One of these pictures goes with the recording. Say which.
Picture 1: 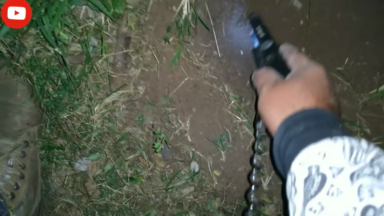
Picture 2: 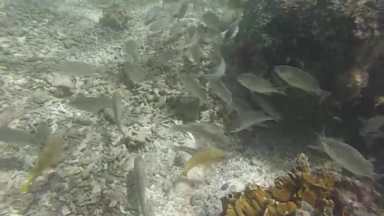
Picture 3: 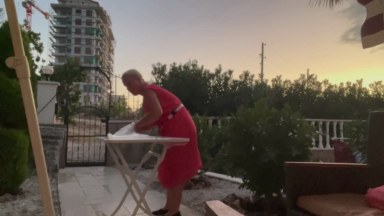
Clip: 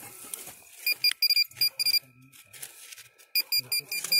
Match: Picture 1